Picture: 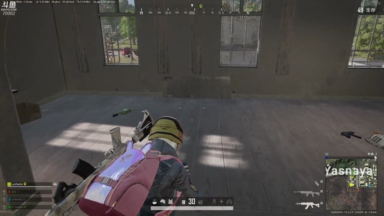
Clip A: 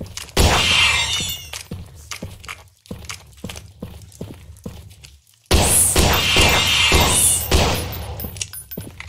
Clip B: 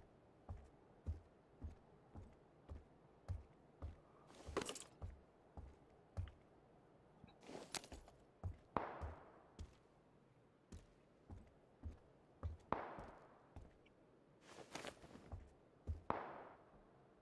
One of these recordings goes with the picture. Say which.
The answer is B